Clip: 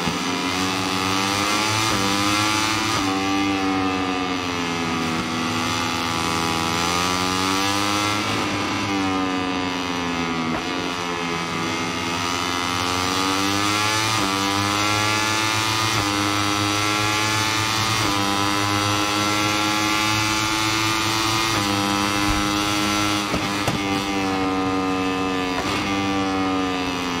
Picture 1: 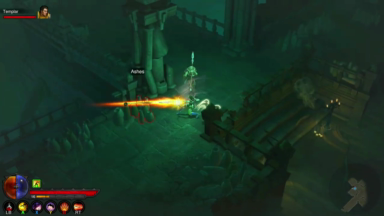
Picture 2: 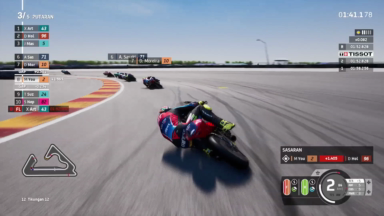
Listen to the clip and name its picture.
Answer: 2